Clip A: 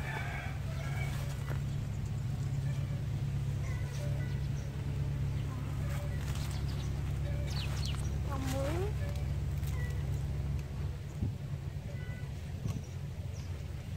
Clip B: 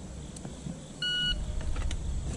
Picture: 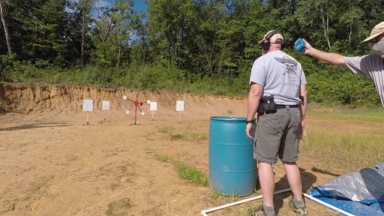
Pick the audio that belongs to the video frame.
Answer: B